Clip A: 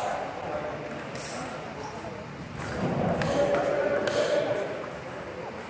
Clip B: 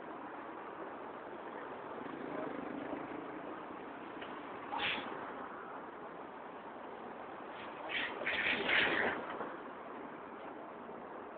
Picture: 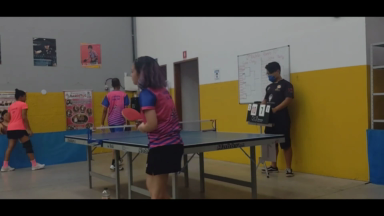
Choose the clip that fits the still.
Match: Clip A